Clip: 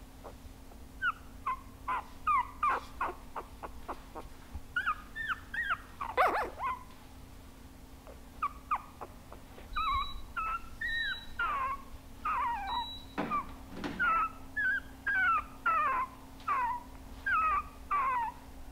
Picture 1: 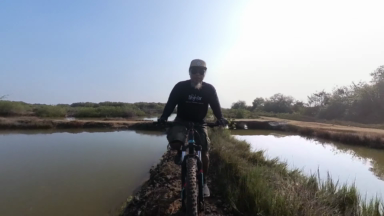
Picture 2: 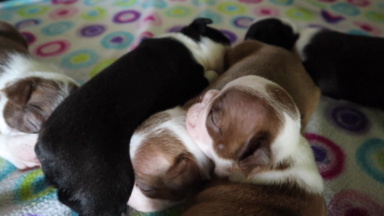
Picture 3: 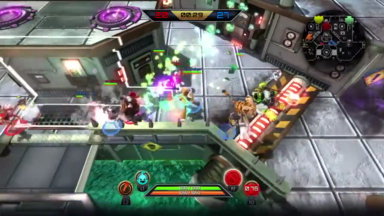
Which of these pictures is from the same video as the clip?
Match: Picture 2